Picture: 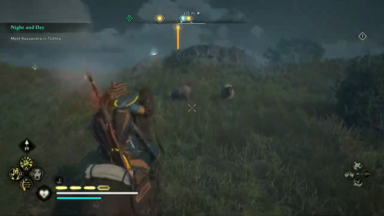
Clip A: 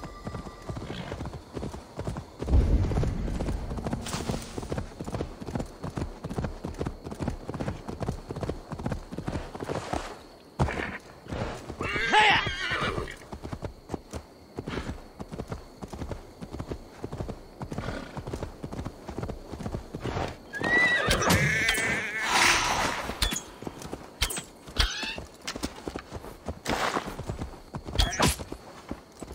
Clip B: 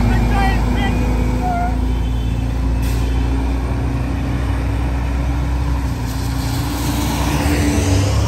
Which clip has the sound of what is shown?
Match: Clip A